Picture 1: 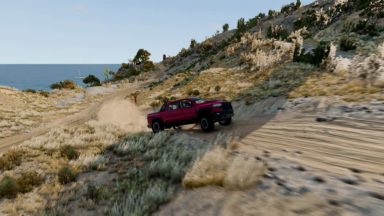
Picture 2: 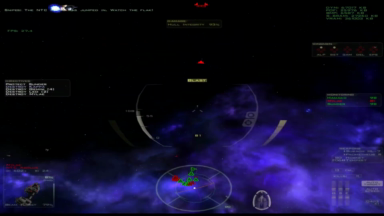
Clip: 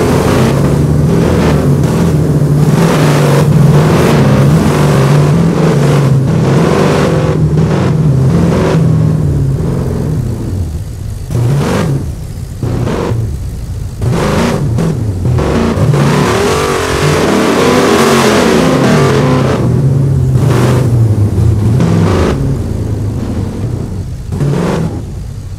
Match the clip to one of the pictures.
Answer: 1